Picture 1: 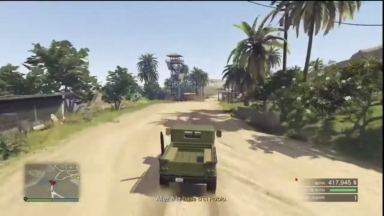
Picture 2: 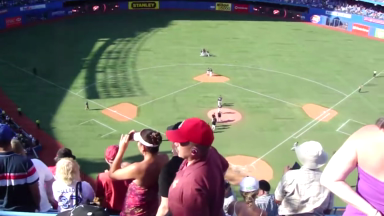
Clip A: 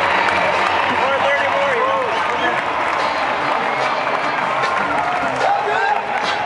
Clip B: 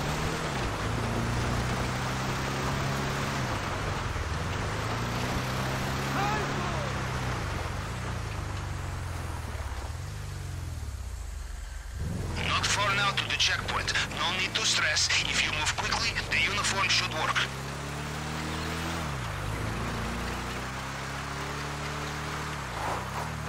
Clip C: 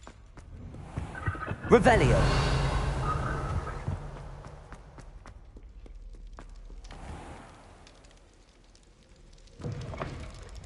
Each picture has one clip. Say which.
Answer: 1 B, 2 A